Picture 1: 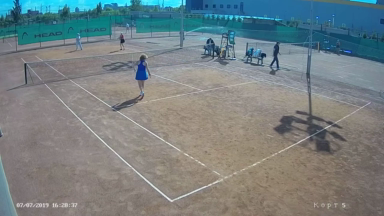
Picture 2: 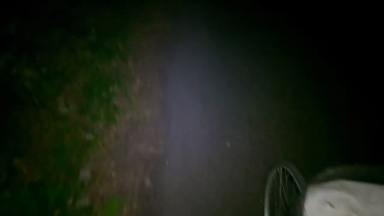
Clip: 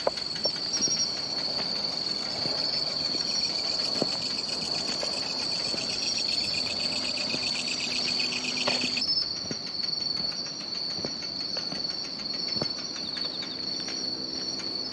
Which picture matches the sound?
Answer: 2